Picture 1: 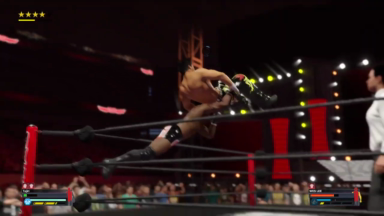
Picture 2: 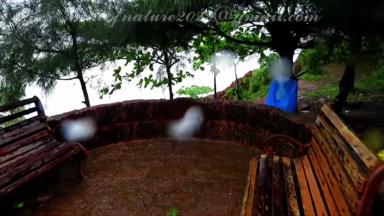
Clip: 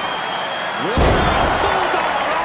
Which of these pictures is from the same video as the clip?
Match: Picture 1